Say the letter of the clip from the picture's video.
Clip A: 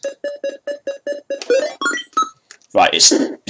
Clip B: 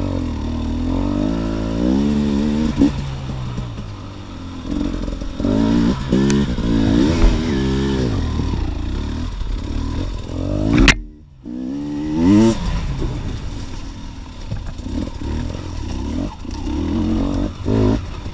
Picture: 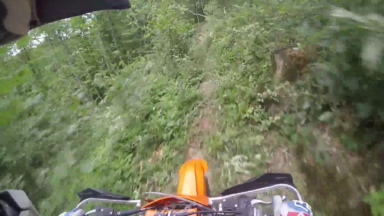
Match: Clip B